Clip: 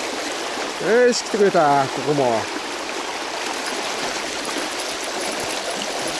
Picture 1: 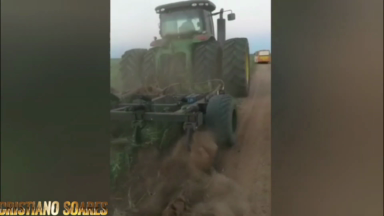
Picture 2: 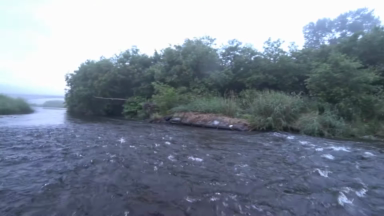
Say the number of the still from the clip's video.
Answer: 2